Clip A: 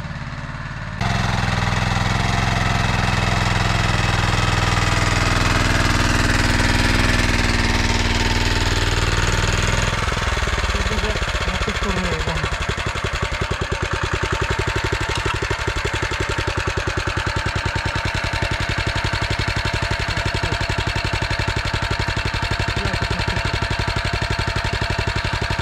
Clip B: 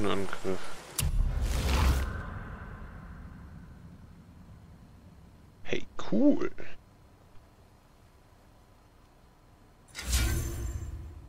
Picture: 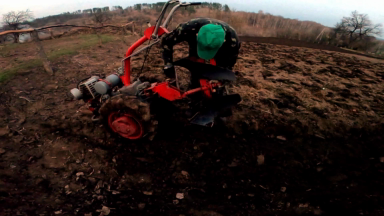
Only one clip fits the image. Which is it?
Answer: A